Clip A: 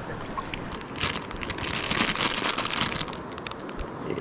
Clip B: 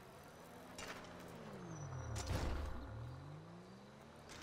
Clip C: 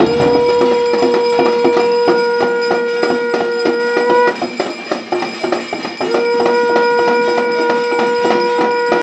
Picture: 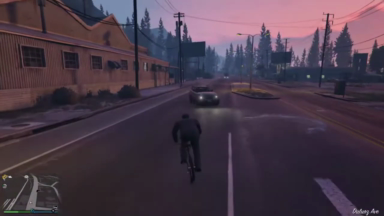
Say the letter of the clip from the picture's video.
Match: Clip B